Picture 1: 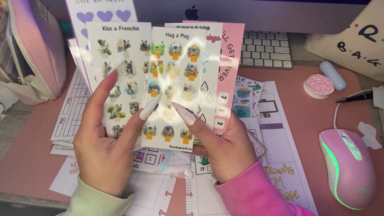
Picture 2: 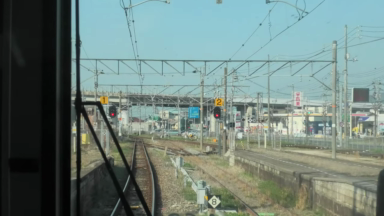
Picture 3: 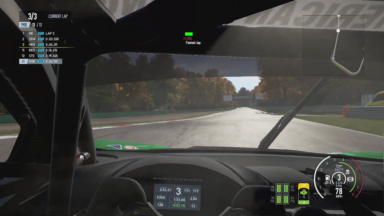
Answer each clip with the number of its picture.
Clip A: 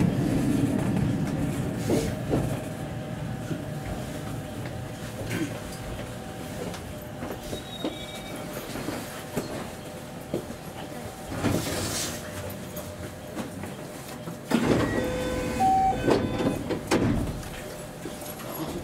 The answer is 2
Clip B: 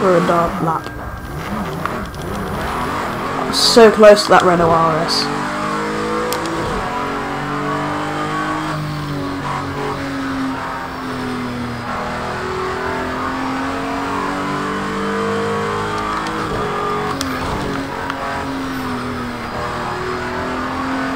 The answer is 3